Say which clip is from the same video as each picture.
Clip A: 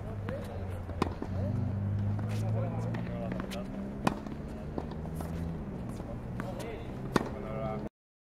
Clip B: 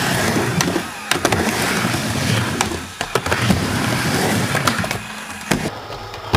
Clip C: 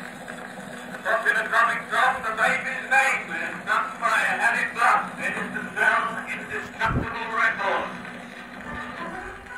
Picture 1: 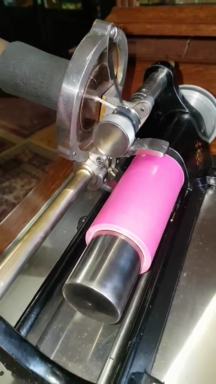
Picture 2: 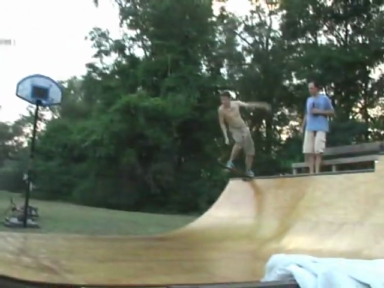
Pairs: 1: C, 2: B